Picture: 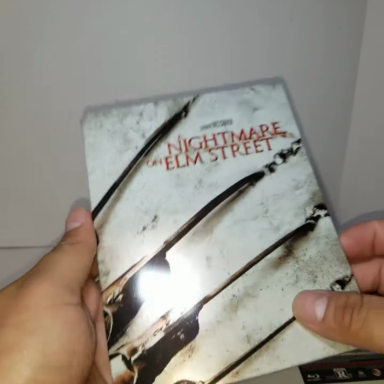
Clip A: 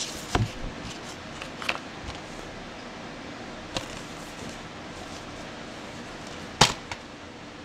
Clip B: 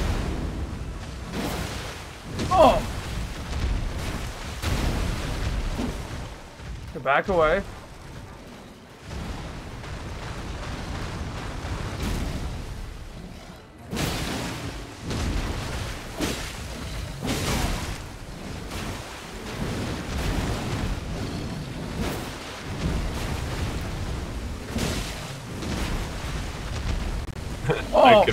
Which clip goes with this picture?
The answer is A